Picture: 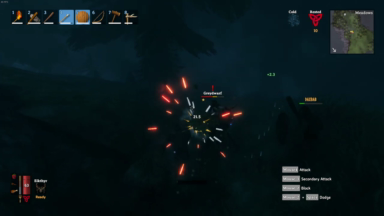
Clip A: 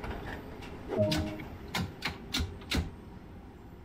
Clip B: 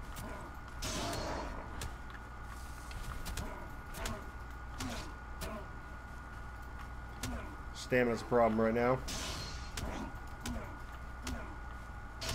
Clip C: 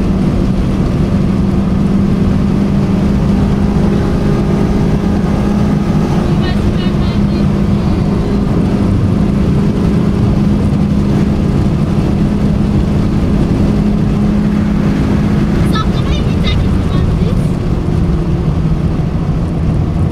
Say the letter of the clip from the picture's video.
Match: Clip B